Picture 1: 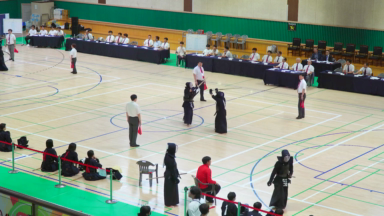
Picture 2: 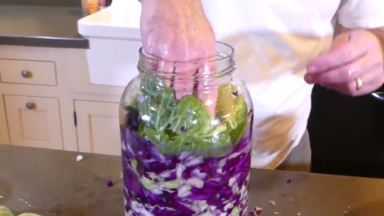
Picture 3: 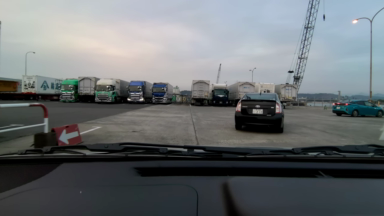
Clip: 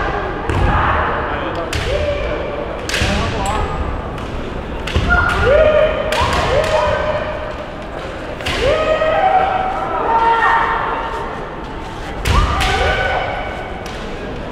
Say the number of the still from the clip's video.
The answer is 1